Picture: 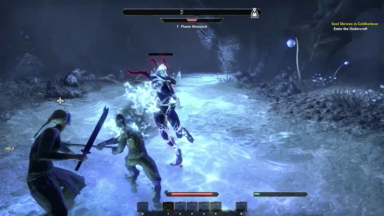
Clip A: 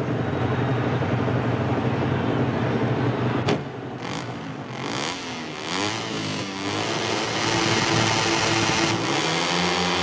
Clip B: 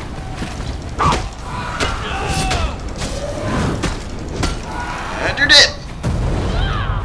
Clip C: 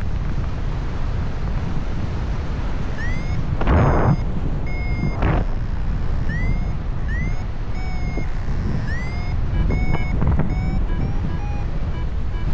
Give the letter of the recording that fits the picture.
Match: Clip B